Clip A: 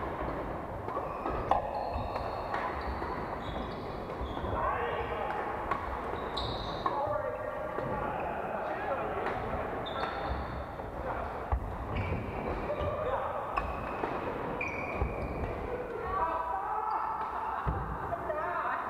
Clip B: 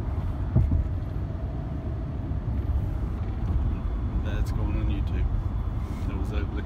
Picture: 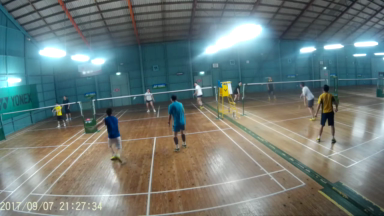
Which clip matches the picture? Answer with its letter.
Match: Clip A